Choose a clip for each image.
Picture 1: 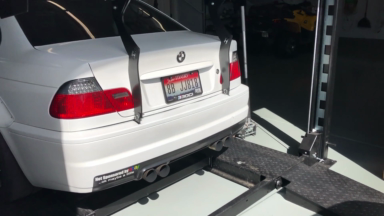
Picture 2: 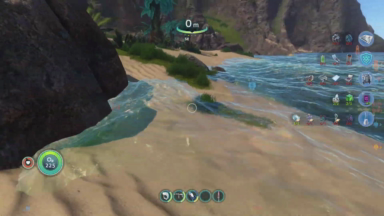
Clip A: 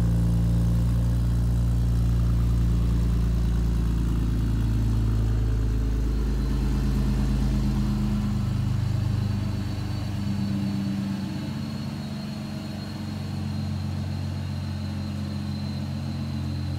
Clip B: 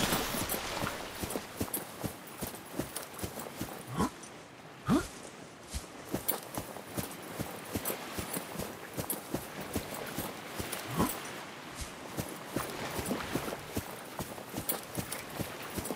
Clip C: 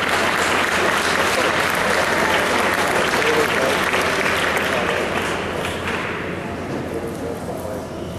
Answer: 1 A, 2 B